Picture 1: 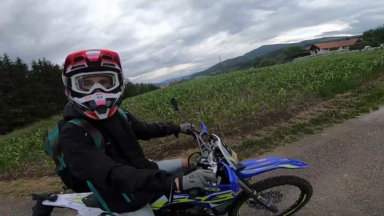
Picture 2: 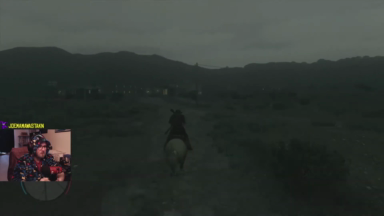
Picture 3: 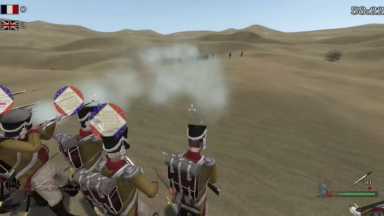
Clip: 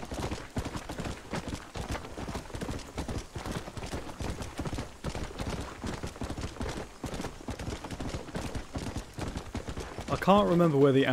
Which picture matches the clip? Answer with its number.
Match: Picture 2